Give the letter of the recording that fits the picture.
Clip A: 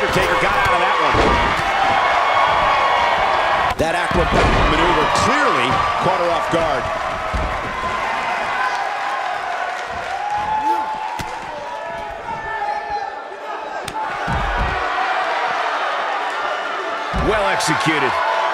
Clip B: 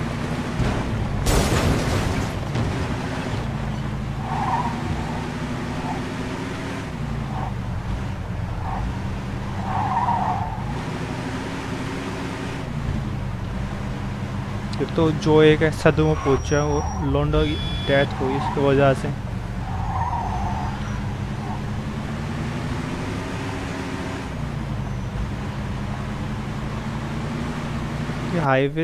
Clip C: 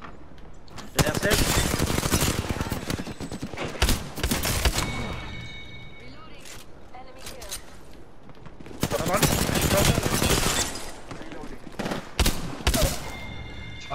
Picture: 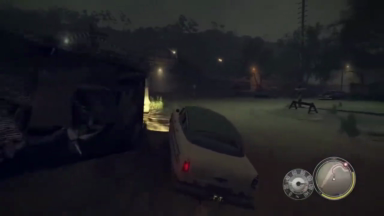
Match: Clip B